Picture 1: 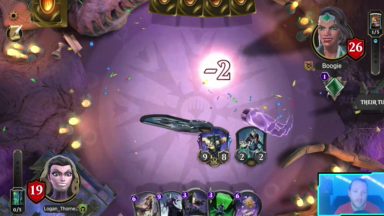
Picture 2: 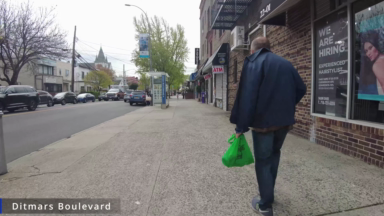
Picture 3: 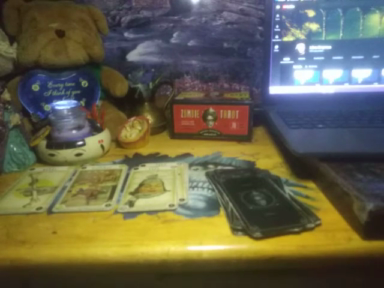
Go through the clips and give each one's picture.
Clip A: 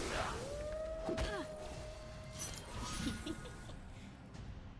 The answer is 1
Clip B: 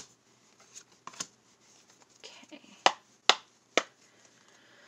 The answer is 3